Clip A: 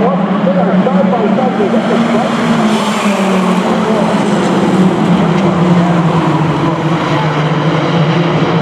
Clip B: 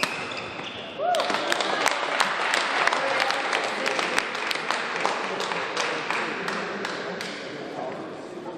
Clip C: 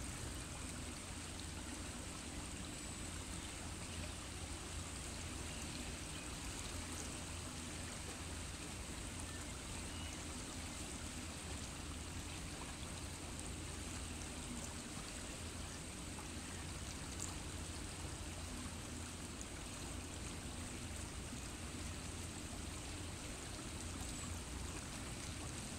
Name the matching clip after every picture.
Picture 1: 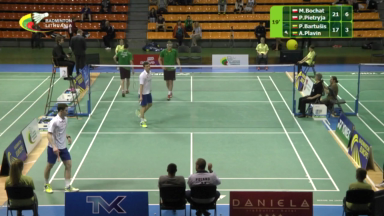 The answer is B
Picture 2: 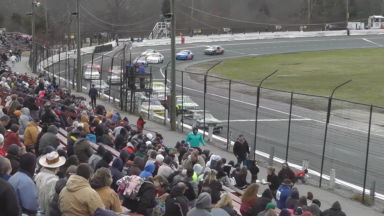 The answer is A